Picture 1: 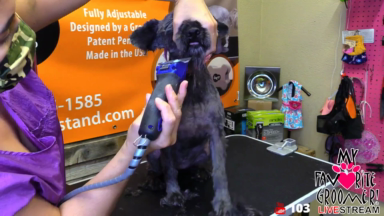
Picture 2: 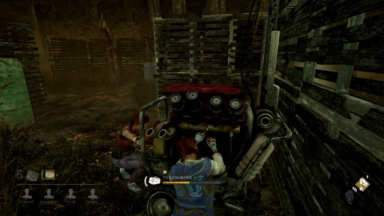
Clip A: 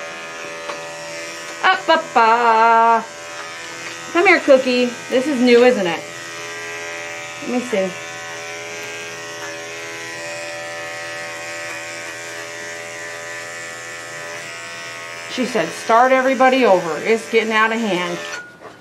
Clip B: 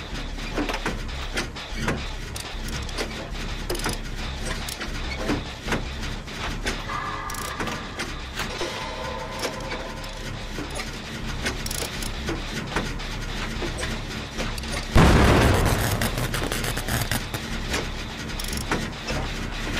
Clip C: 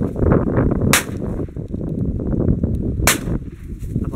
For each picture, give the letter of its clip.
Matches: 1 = A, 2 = B